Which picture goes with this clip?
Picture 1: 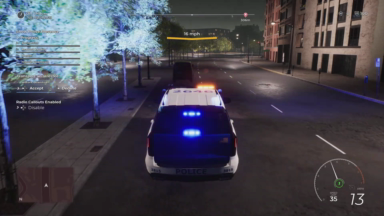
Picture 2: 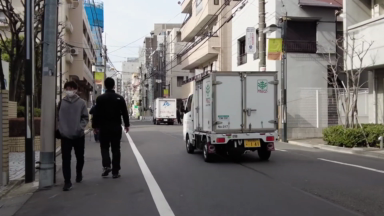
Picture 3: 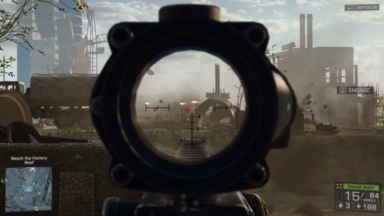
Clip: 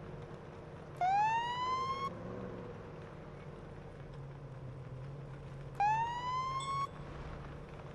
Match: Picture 1